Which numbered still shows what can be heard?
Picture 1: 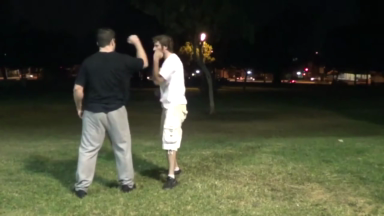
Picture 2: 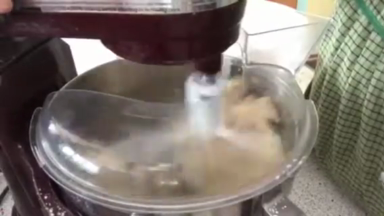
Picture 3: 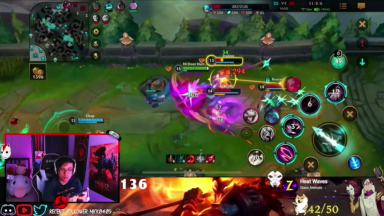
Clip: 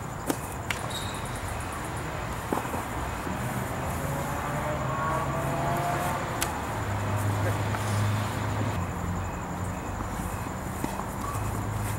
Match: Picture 1